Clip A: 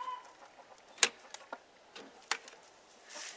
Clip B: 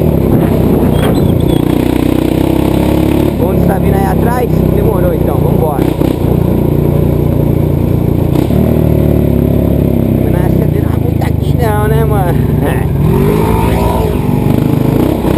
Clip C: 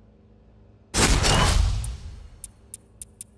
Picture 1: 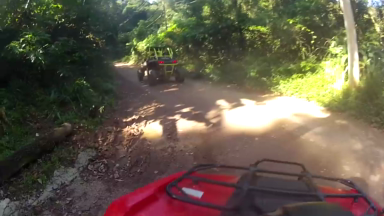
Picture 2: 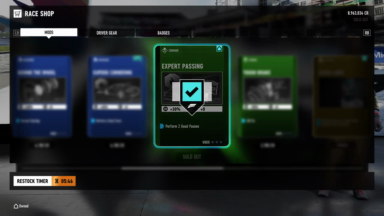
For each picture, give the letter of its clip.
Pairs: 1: B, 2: C